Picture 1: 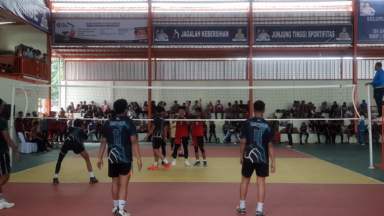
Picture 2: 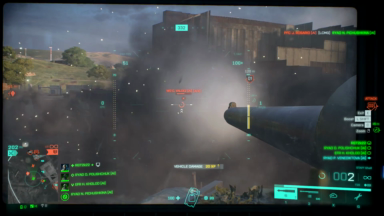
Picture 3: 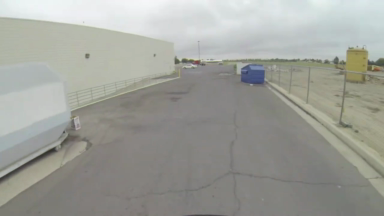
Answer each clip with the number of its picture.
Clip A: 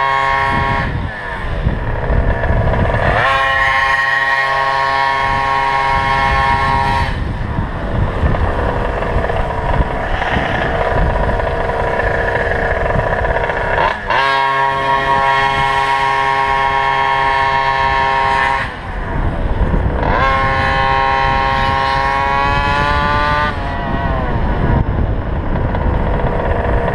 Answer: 3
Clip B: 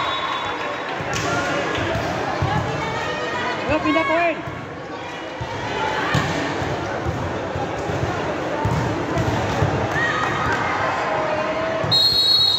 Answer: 1